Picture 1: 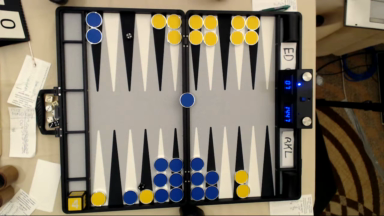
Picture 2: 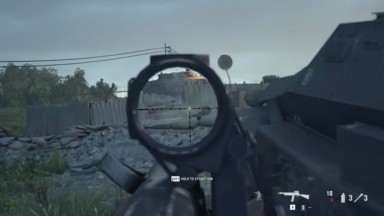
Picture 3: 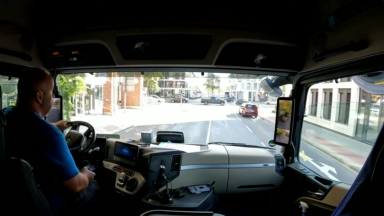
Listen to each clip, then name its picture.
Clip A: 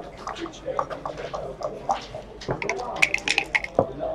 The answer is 1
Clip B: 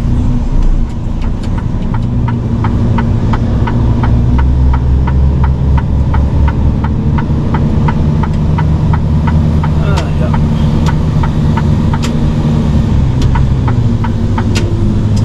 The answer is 3